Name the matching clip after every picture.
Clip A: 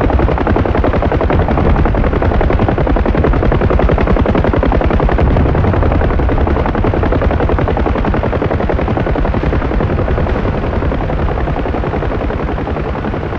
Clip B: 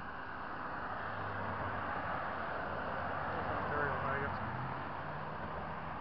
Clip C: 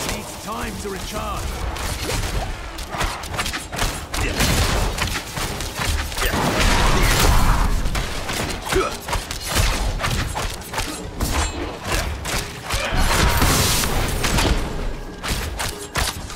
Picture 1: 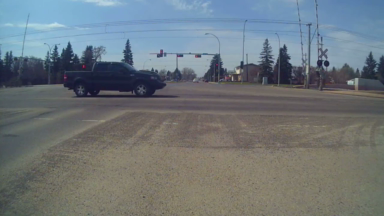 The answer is B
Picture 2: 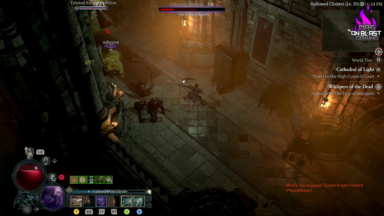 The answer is C